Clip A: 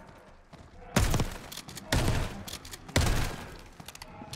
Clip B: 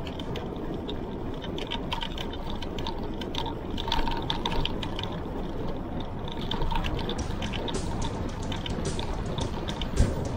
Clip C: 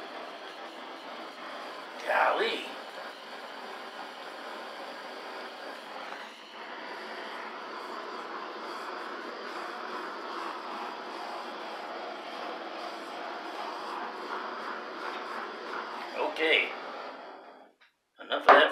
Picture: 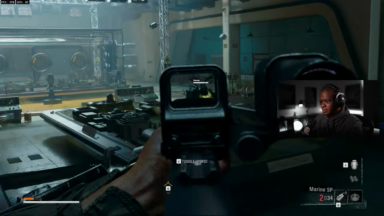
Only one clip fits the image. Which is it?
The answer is A